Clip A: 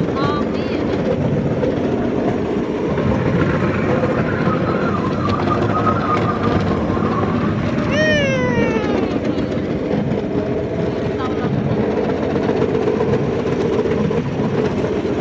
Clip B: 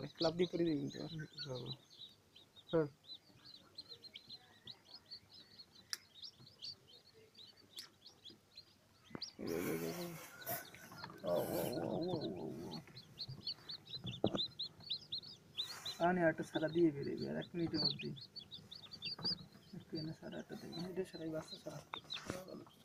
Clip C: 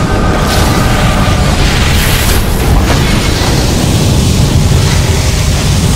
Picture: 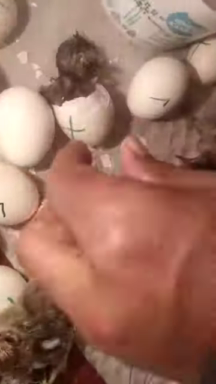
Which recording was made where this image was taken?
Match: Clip B